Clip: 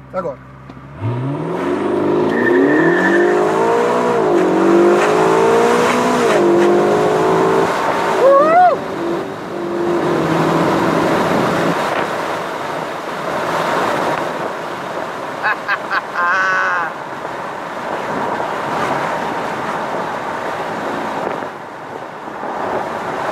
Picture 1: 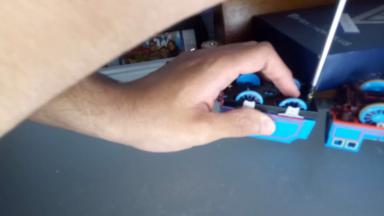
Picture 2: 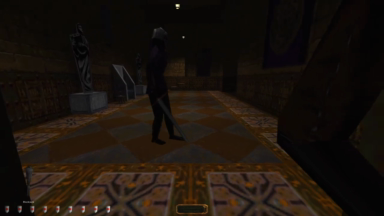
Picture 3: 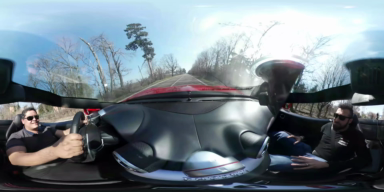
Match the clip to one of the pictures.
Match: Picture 3